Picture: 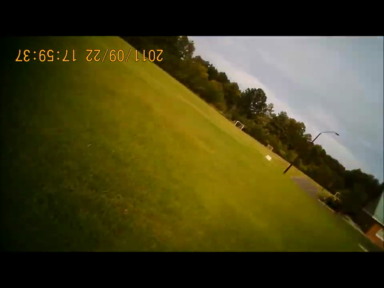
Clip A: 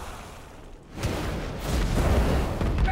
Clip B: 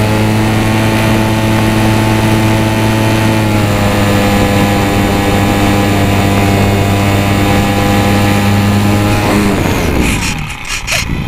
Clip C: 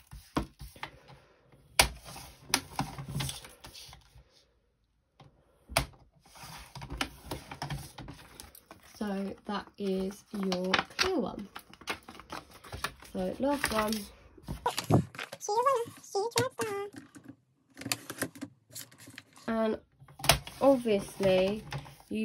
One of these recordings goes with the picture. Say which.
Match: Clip B